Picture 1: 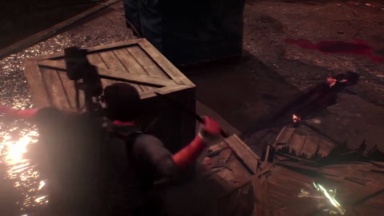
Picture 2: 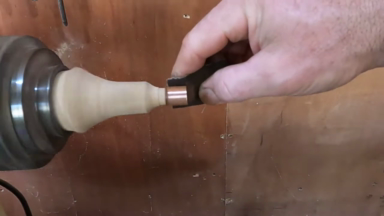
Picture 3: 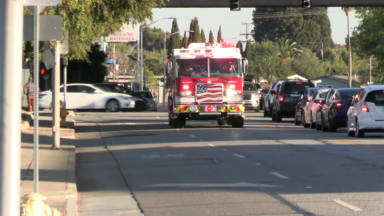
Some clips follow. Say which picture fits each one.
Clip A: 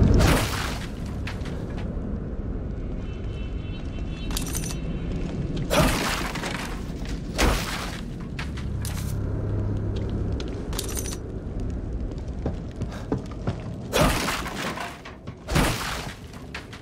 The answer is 1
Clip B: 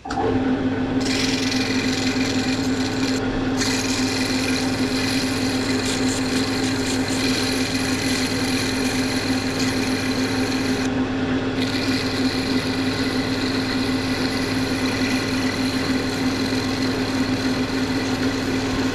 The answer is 2